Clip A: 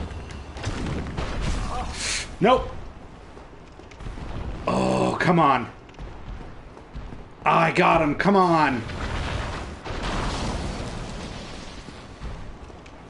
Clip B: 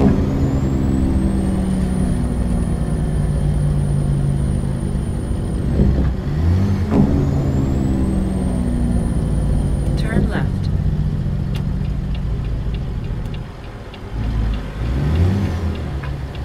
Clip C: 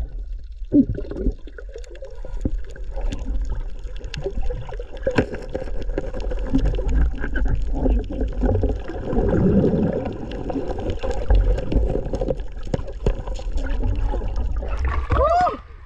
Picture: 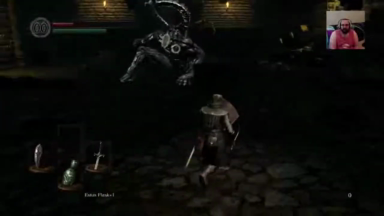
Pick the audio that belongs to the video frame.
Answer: A